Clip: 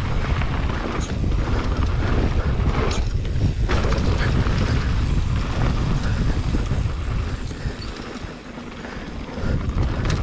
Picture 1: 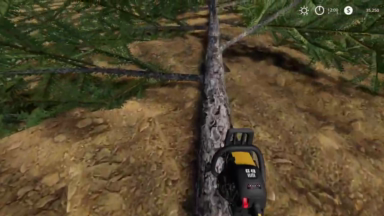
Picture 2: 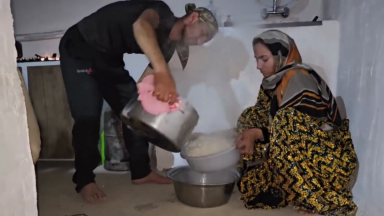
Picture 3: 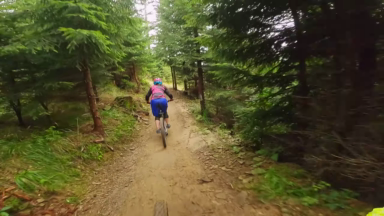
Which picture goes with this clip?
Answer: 3